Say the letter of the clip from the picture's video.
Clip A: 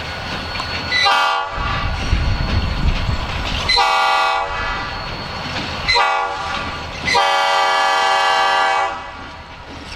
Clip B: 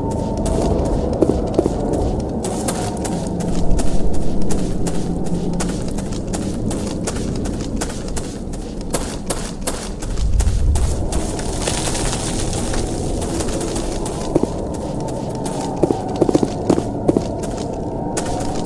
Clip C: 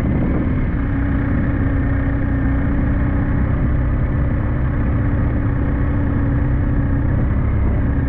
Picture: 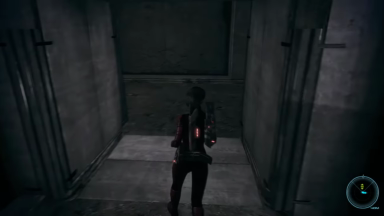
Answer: B